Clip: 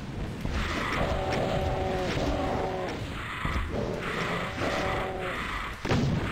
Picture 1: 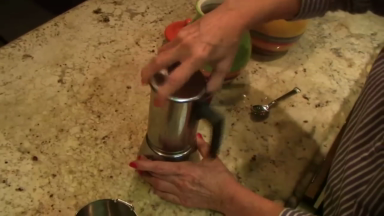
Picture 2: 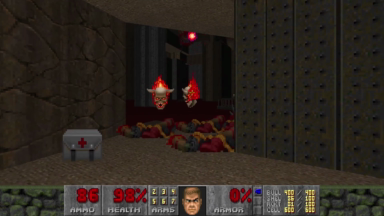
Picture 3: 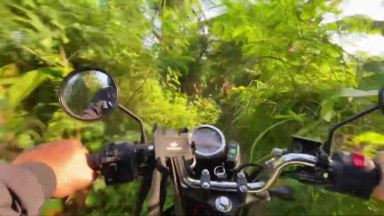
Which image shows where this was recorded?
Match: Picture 2